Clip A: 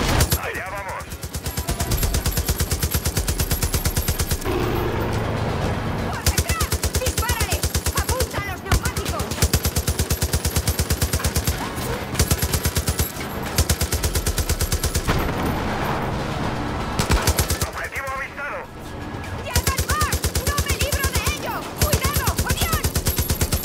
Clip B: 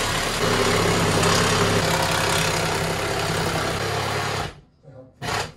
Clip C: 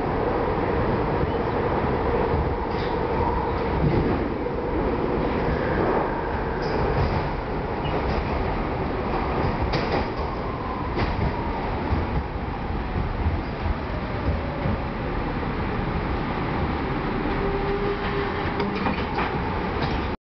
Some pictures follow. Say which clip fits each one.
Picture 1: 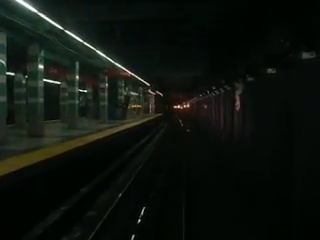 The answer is C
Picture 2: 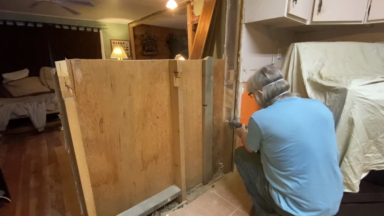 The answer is B